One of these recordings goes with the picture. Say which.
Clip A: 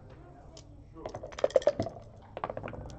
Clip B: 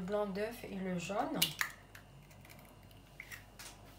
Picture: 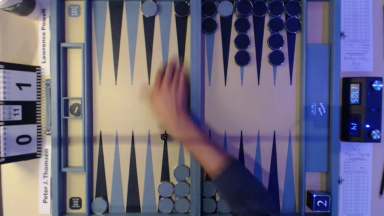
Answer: A